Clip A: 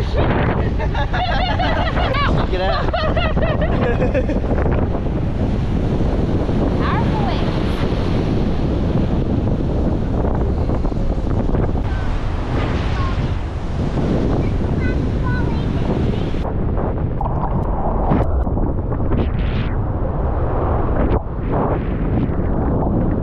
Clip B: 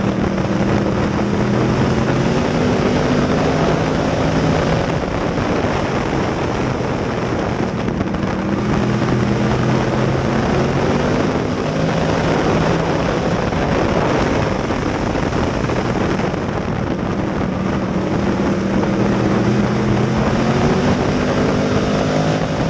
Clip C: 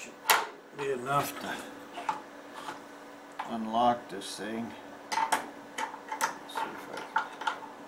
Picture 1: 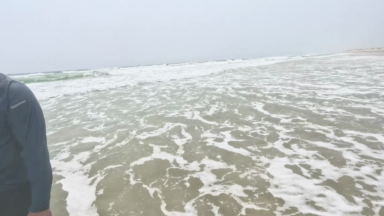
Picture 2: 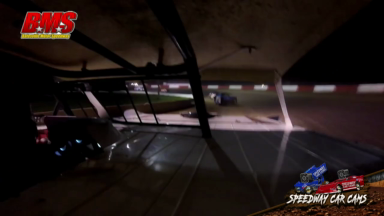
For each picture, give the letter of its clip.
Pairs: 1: A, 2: B